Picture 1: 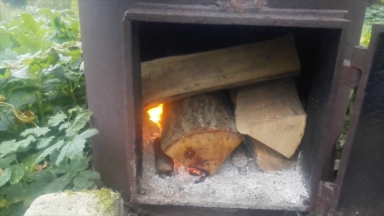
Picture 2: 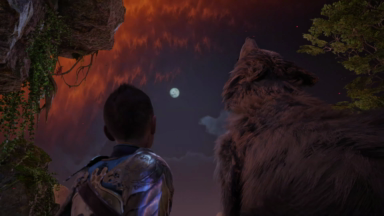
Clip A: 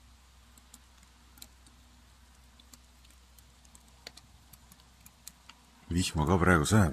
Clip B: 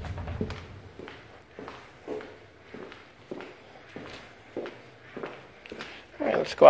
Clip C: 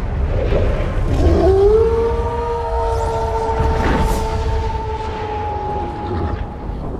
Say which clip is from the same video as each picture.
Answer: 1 A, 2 C